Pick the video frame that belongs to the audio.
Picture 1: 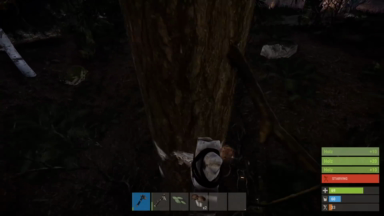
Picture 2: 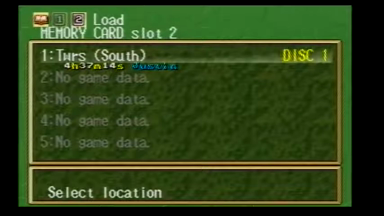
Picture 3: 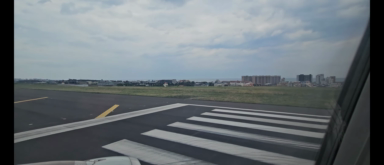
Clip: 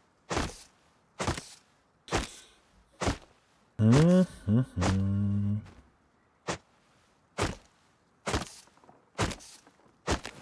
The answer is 1